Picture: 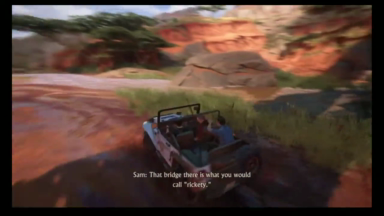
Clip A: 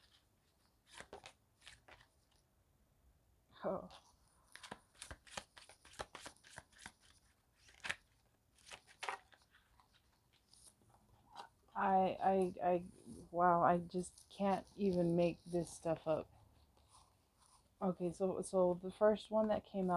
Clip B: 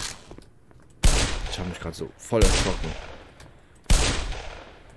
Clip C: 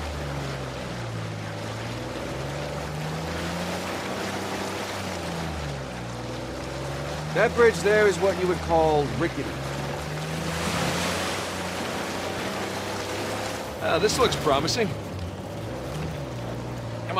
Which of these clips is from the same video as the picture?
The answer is C